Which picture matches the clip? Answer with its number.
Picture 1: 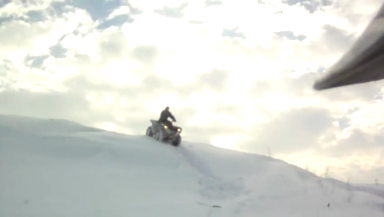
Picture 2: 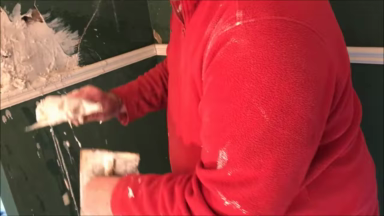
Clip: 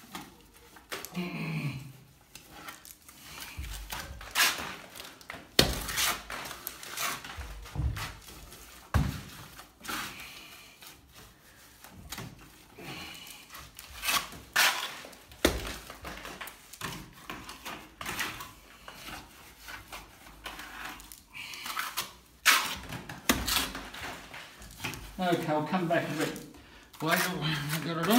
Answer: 2